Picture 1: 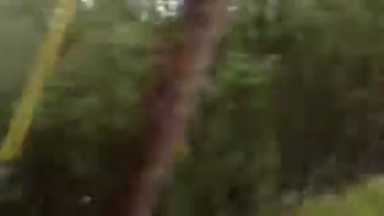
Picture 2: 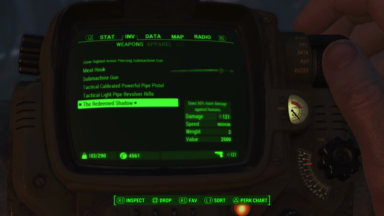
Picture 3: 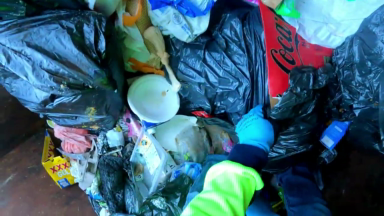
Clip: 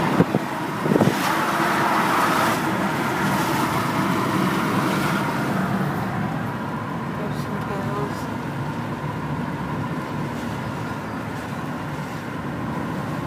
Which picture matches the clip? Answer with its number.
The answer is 1